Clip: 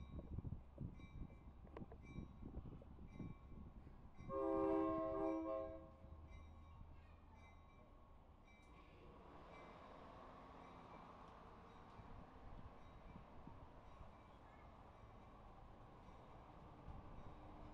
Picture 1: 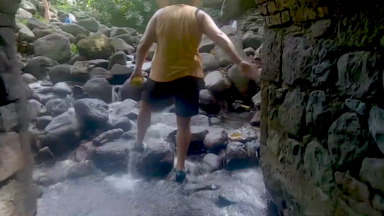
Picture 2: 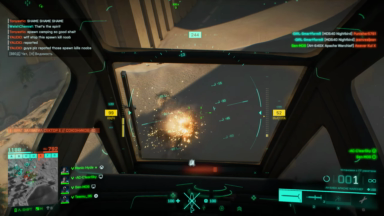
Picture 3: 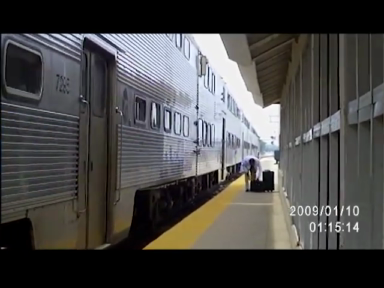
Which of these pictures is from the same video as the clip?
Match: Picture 3